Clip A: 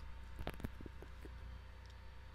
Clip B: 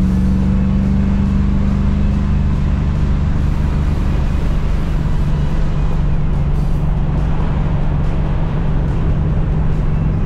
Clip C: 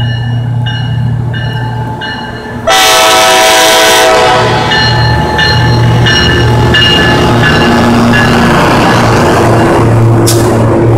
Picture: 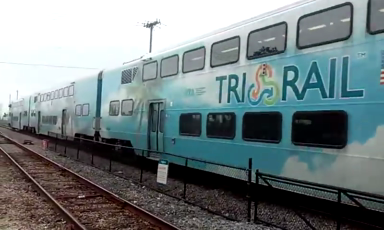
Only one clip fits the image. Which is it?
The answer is C